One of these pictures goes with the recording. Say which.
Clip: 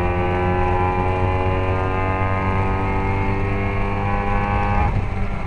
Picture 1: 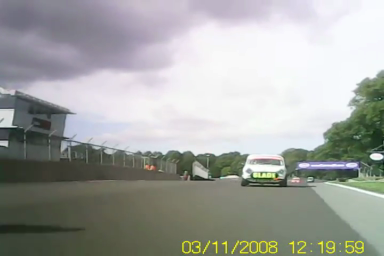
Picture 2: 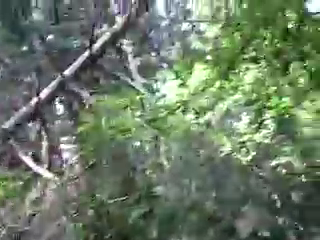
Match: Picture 1